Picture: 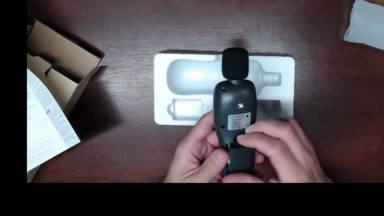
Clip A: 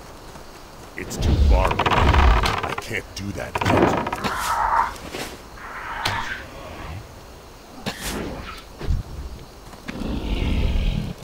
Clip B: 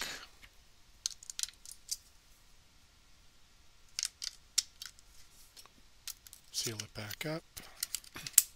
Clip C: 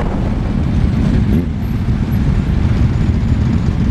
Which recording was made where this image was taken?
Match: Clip B